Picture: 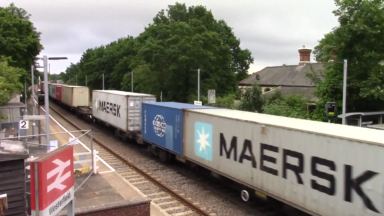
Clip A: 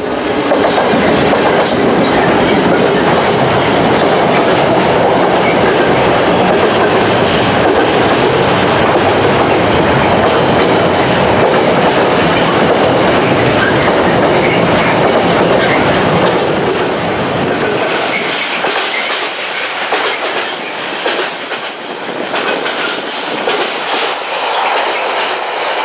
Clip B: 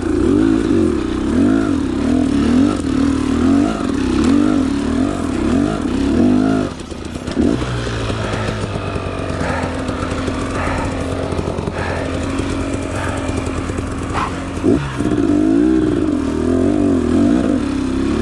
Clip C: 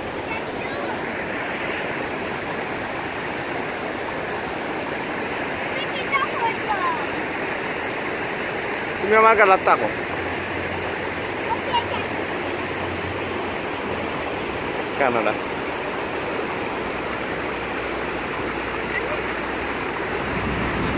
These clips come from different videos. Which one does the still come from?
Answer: A